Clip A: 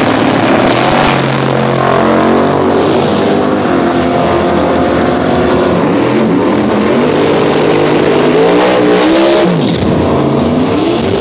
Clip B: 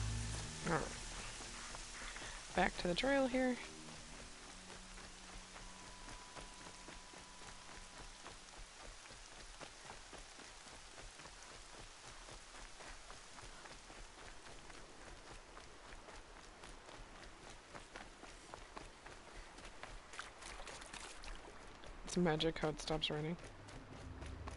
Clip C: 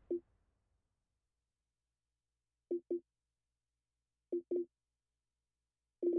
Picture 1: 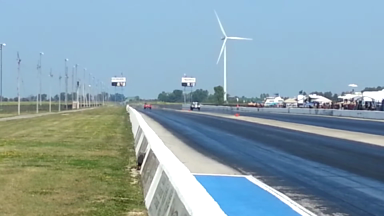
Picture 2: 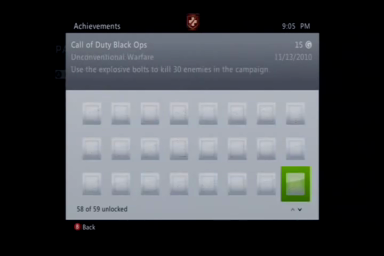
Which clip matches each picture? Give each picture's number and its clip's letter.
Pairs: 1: A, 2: C